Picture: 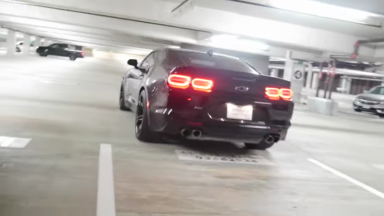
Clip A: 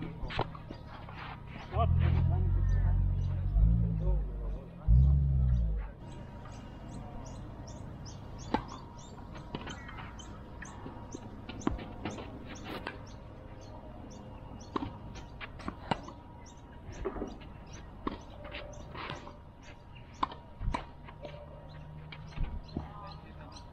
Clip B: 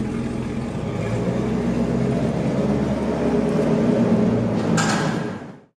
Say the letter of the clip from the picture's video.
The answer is B